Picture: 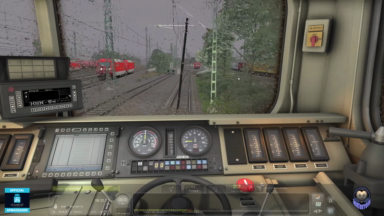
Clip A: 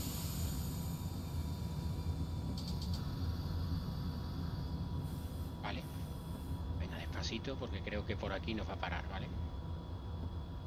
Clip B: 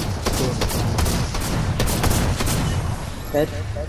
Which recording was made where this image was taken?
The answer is A